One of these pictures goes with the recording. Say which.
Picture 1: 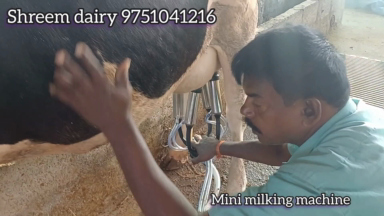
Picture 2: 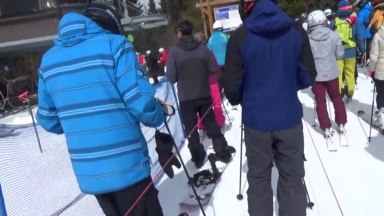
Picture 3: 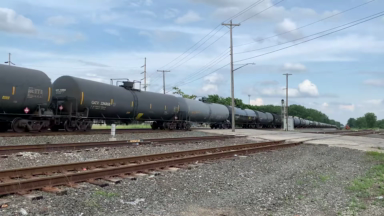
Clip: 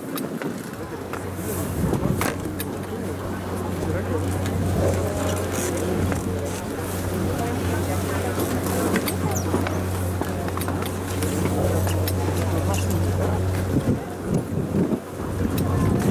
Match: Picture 2